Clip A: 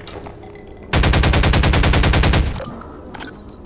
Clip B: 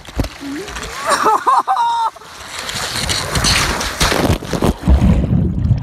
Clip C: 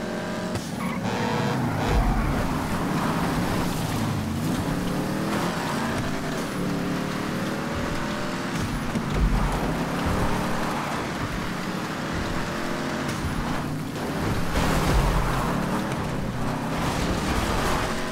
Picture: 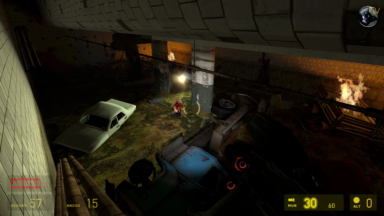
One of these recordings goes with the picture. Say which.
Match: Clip A